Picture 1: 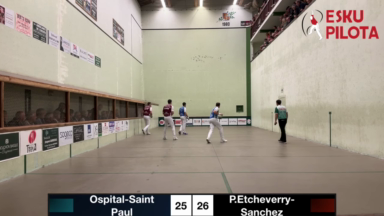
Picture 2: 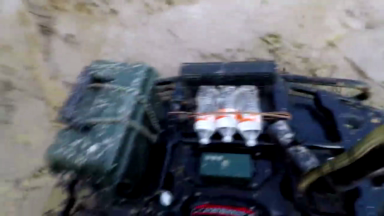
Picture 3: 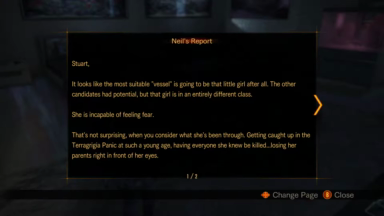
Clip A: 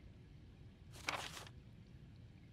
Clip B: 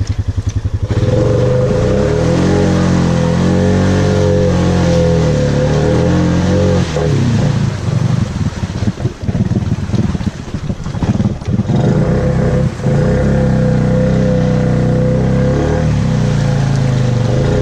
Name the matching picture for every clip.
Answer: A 3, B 2